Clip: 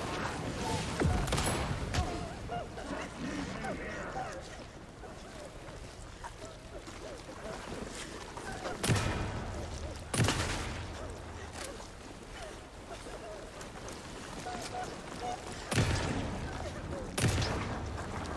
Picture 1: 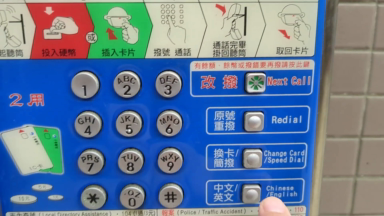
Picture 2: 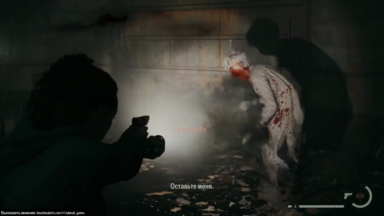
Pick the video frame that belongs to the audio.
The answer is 2